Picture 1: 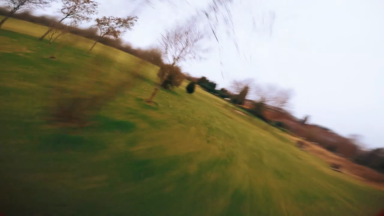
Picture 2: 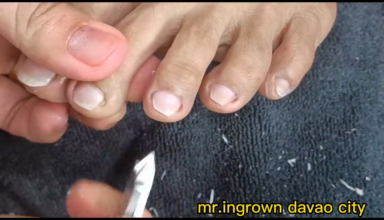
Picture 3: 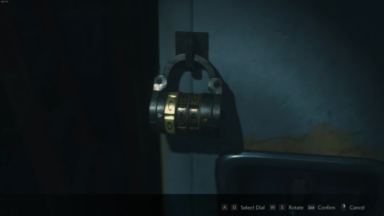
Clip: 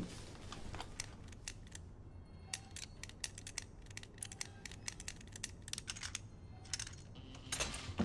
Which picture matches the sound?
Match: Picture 3